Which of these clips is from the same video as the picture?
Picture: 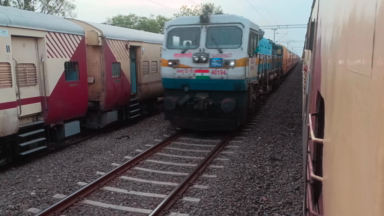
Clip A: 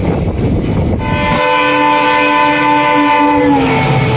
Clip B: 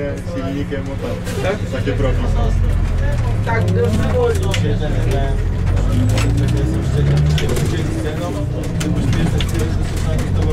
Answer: A